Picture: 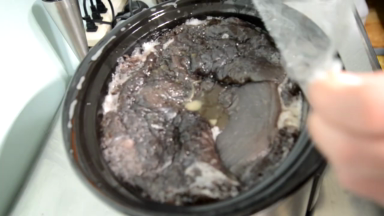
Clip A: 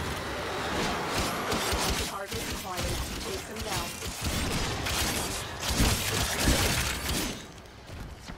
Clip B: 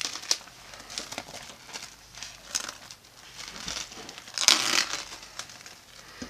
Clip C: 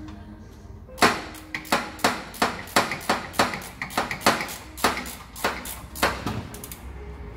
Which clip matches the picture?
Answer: B